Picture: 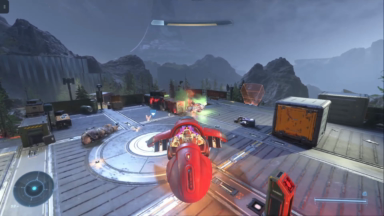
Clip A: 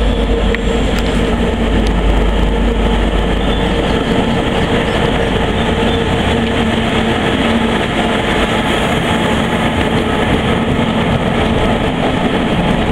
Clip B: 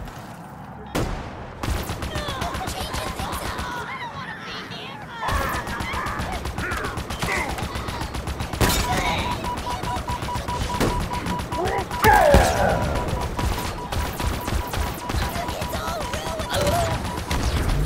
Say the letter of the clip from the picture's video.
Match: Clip B